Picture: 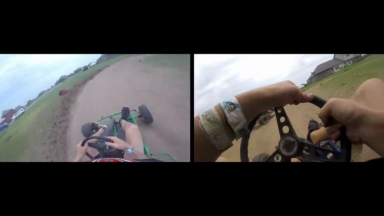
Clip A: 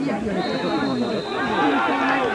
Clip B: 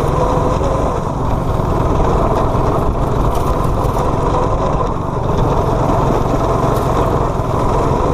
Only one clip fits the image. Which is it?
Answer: B